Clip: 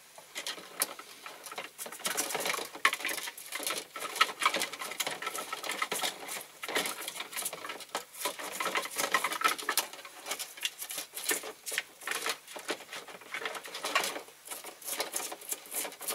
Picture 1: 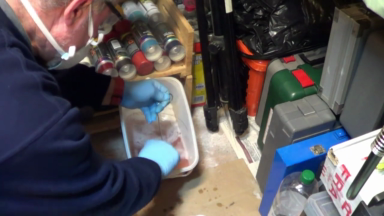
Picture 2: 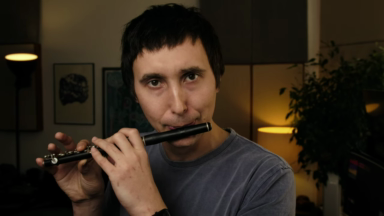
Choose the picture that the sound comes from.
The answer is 1